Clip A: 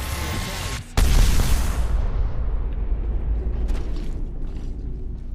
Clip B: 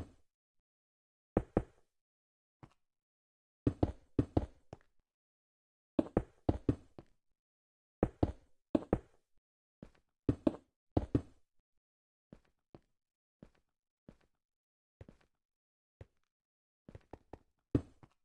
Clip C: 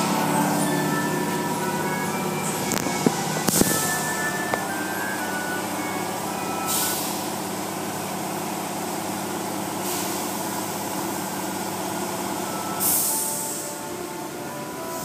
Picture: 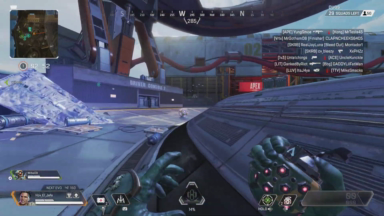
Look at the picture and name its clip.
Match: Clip A